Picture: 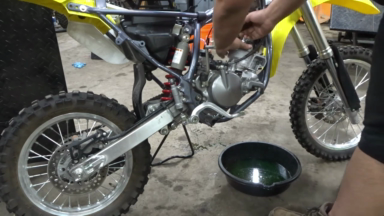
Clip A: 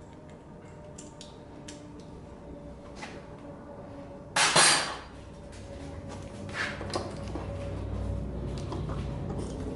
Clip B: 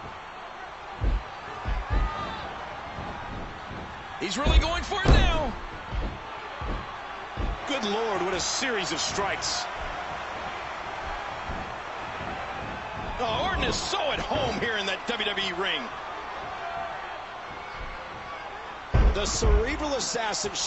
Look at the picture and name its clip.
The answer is A